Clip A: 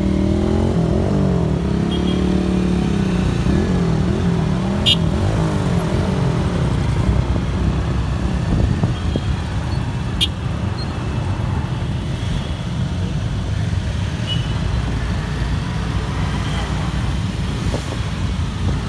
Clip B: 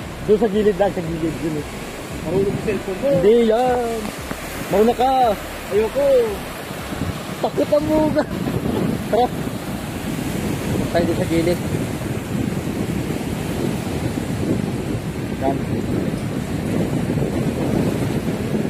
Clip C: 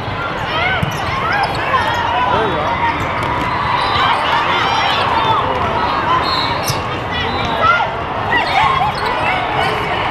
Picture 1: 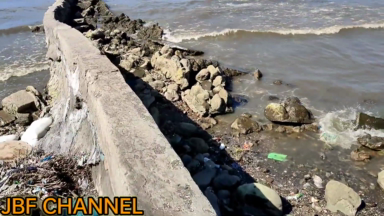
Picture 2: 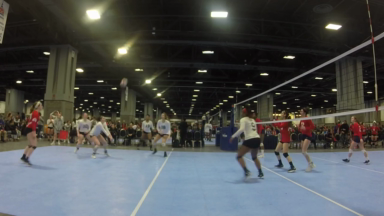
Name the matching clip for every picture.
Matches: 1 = B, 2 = C